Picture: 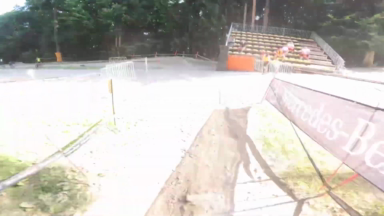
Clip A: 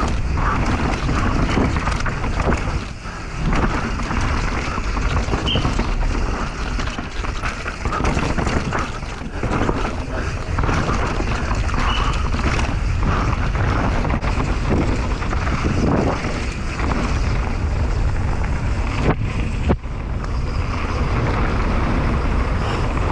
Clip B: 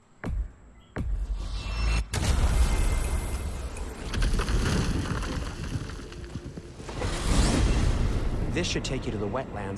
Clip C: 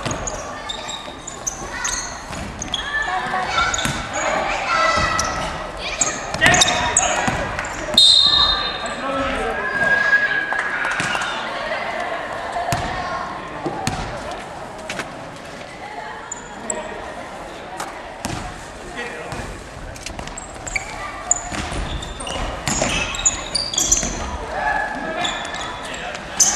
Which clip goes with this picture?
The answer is A